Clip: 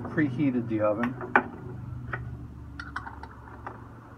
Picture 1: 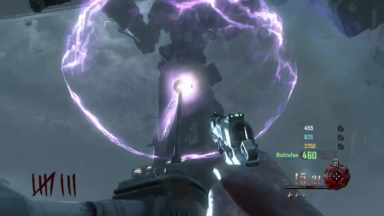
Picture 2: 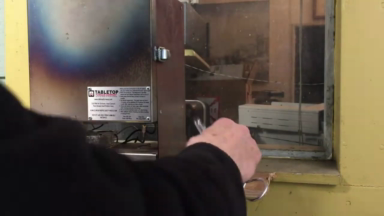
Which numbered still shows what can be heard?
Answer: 2